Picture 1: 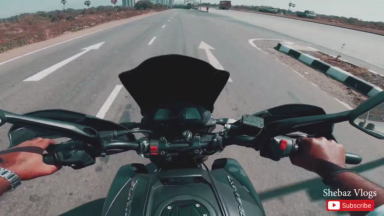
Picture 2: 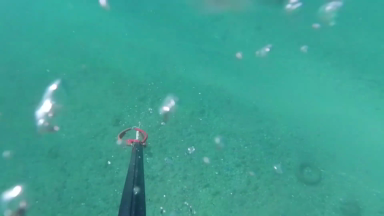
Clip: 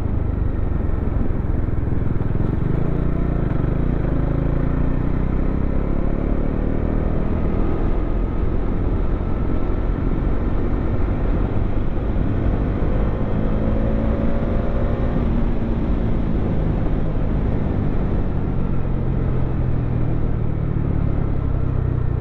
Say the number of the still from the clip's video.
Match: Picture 1